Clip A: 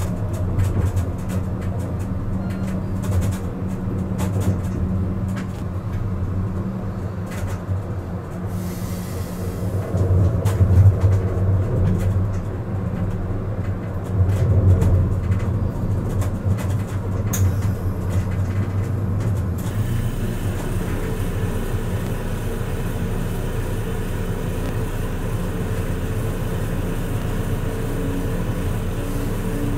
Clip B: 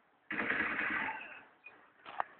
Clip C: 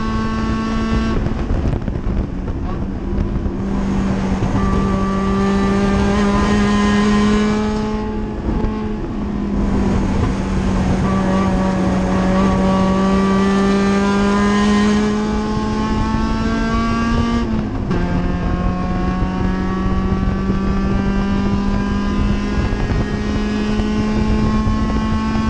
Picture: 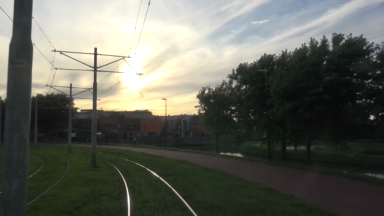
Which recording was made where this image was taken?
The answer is A